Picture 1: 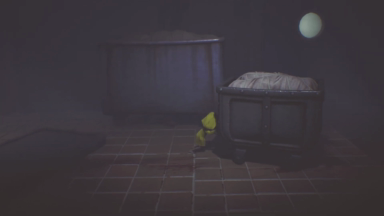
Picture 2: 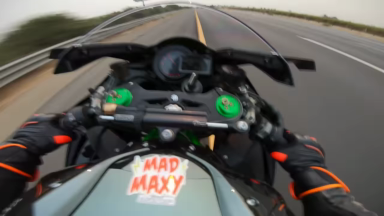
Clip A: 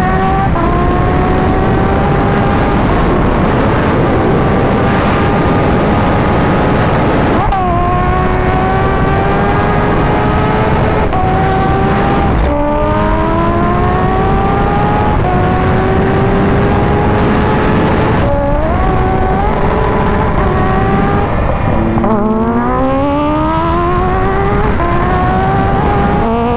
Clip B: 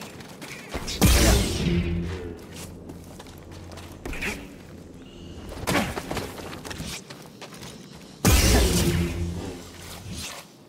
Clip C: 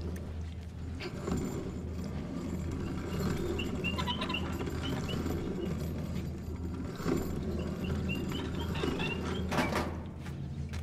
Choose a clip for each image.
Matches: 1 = C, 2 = A